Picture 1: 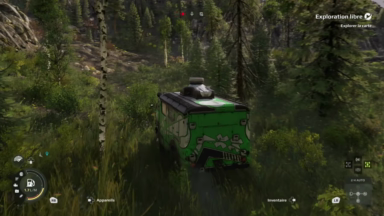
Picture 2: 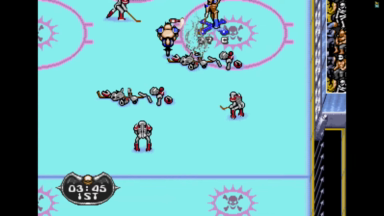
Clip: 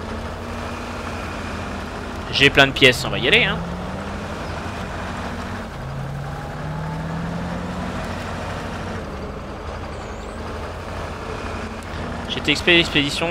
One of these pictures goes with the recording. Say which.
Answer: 1